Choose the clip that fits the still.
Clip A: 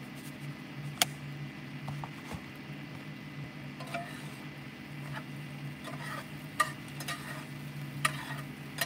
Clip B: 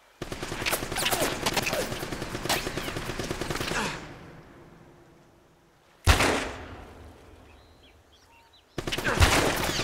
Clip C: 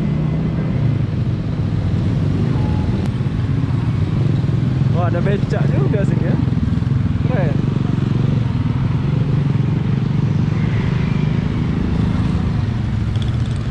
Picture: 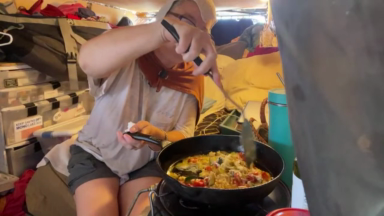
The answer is A